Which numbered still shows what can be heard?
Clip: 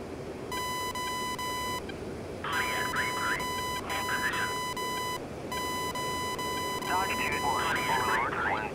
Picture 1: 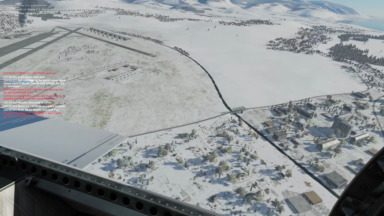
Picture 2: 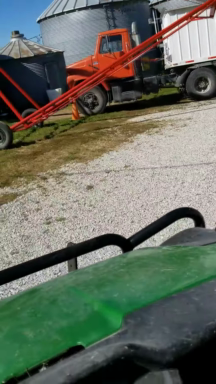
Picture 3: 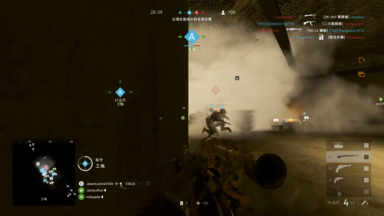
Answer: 1